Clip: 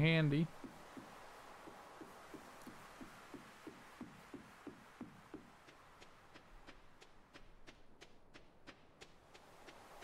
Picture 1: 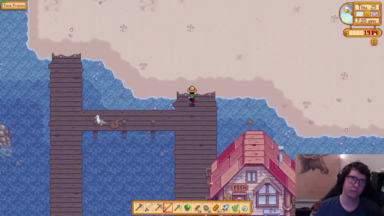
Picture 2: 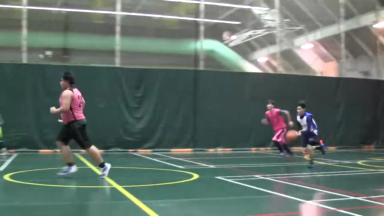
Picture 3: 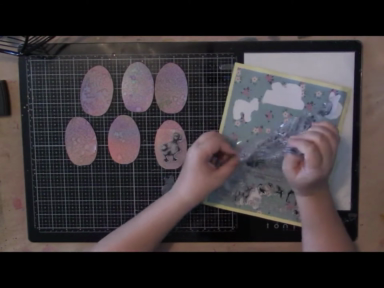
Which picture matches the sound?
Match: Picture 1